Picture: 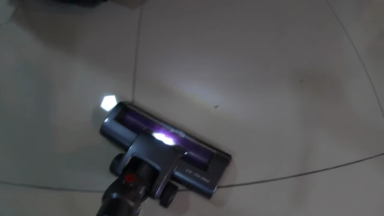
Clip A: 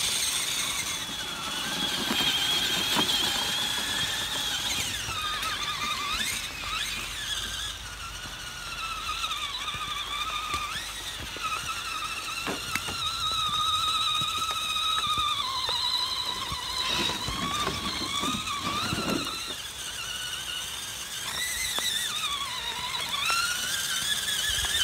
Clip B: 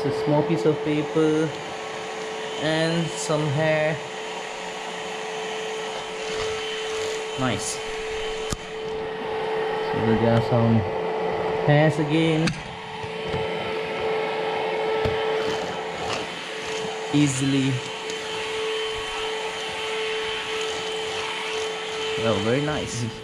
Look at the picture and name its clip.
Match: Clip B